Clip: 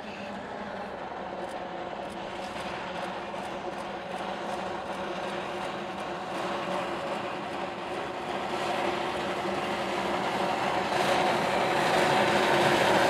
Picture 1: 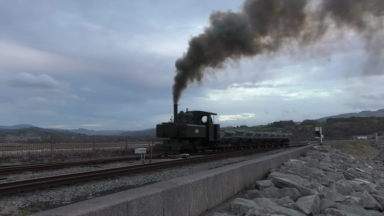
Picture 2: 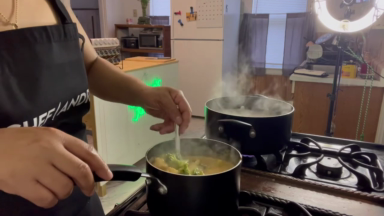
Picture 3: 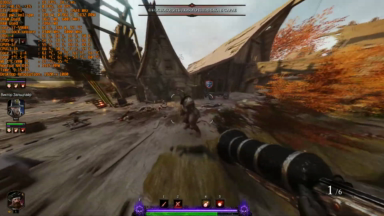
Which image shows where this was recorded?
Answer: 1